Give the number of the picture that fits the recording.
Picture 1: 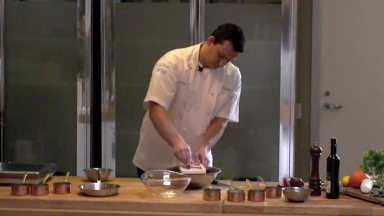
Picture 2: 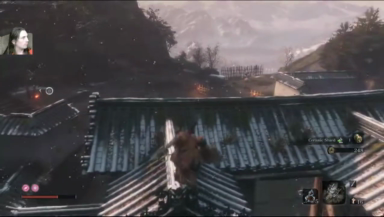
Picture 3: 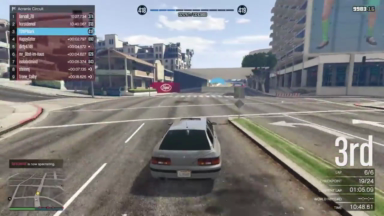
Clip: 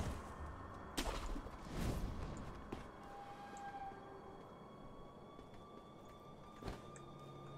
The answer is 2